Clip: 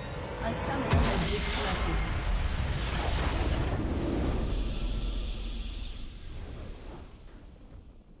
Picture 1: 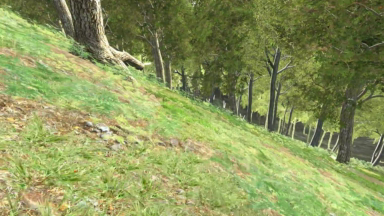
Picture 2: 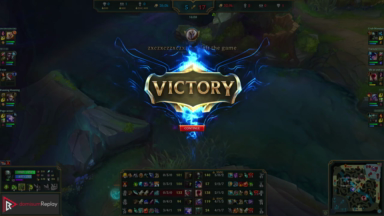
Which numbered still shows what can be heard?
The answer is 2